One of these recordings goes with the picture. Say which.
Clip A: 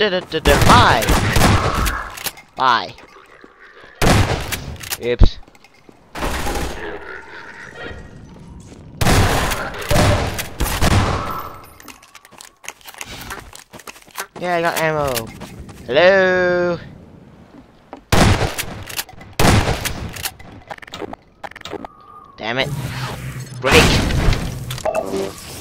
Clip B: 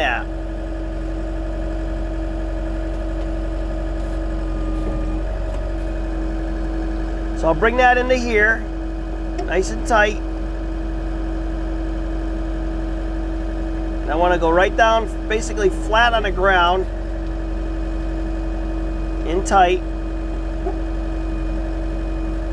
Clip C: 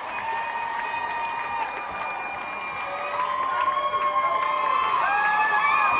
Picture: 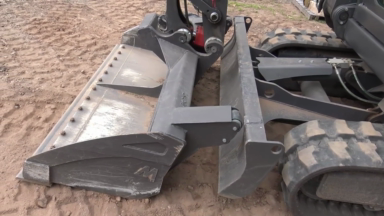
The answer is B